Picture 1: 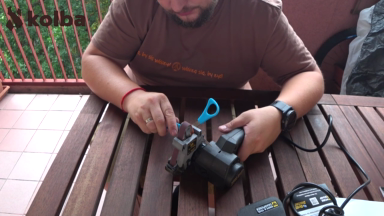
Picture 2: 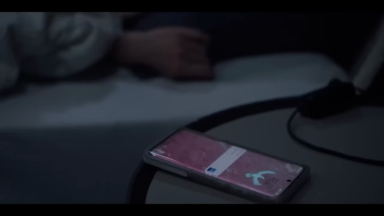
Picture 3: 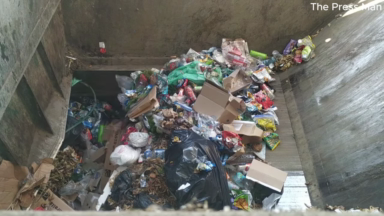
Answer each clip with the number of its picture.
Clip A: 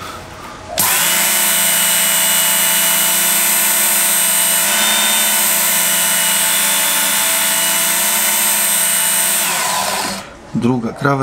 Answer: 1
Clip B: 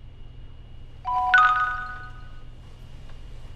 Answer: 2